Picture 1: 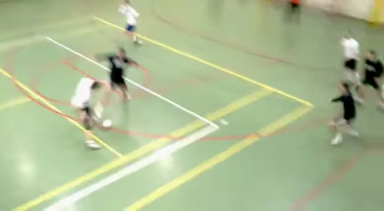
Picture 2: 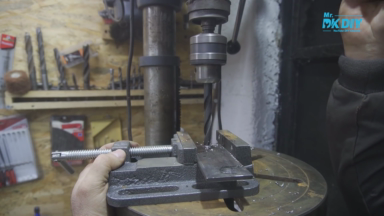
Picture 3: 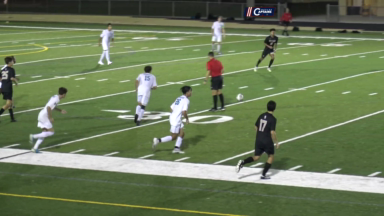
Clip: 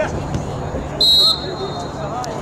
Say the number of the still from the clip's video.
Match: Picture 3